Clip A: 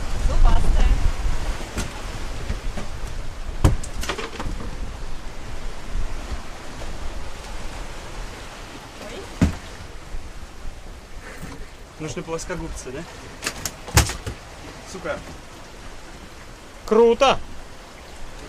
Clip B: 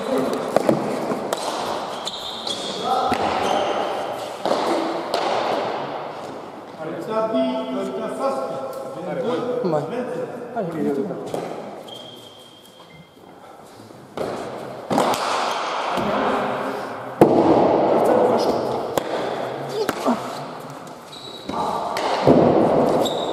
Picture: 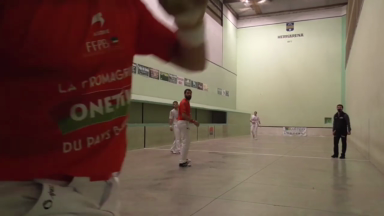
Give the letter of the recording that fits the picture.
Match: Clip B